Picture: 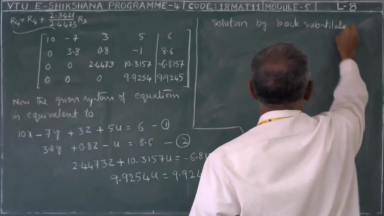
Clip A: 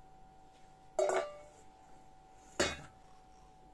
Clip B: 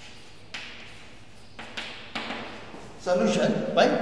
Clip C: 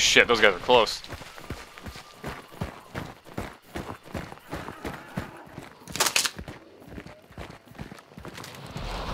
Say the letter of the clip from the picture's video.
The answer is B